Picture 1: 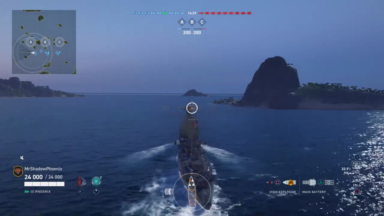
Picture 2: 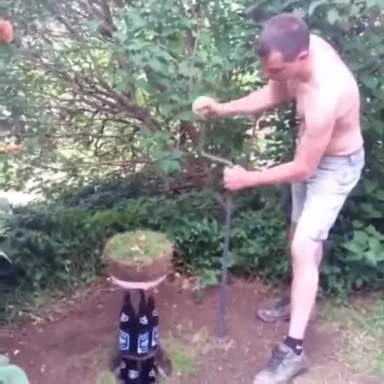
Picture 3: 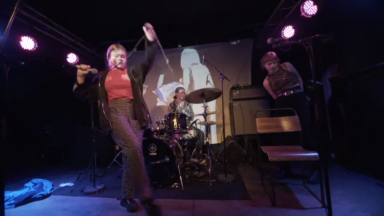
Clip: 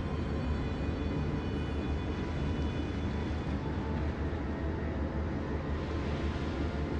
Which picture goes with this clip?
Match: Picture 1